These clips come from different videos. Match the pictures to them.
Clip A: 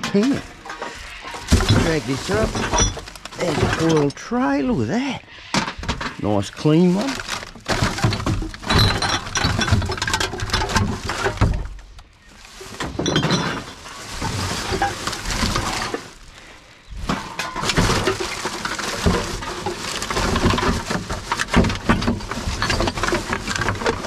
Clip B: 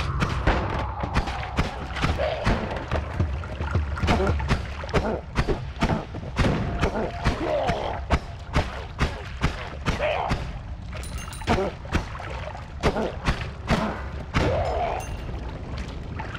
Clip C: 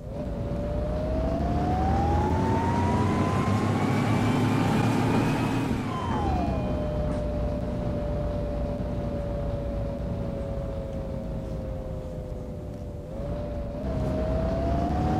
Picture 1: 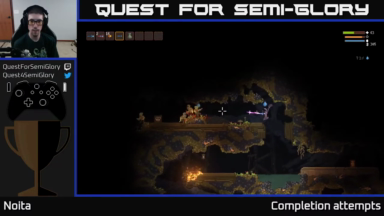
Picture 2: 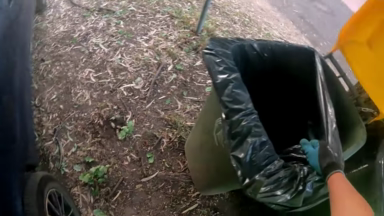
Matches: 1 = B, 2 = A